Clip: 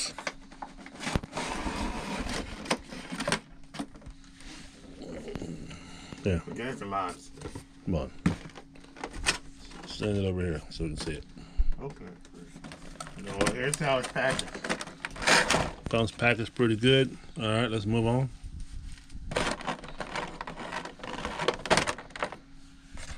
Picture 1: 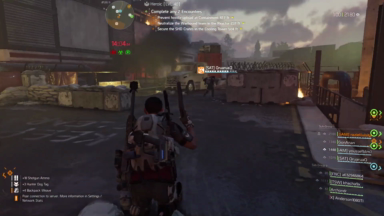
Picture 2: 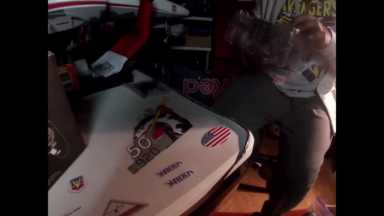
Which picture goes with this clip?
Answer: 2